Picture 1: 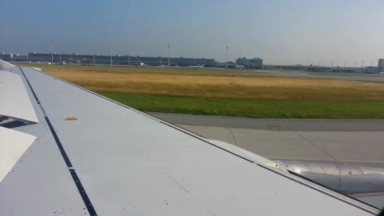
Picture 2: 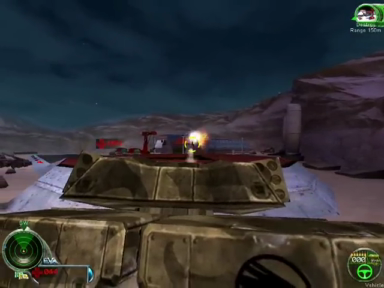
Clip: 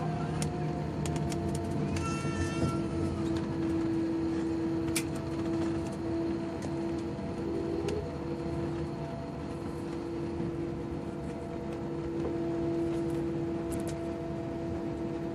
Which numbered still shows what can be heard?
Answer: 1